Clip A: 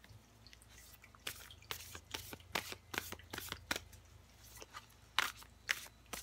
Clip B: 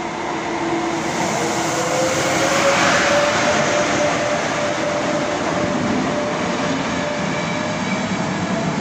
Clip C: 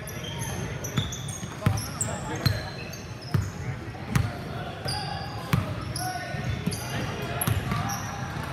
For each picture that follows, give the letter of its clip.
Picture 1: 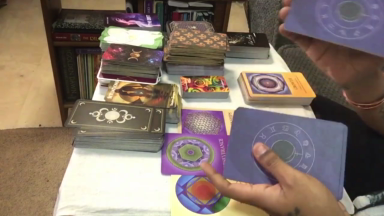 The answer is A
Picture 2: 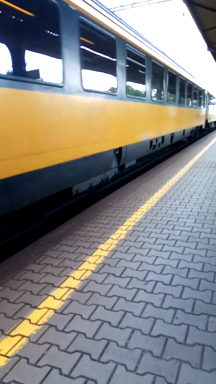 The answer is B